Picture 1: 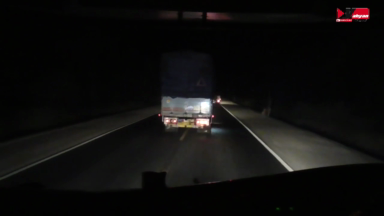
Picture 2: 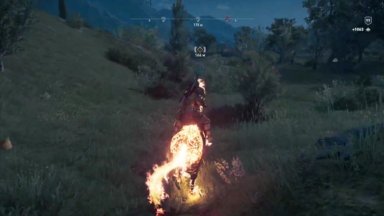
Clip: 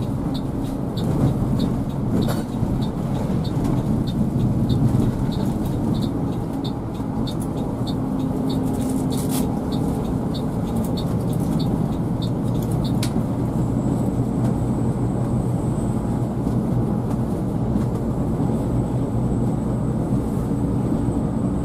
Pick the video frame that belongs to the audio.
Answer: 1